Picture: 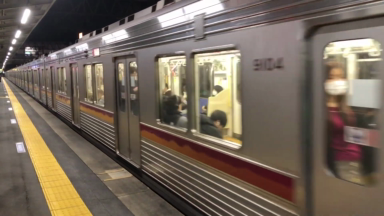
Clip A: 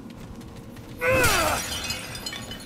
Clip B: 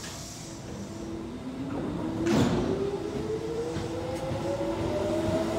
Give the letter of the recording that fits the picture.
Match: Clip B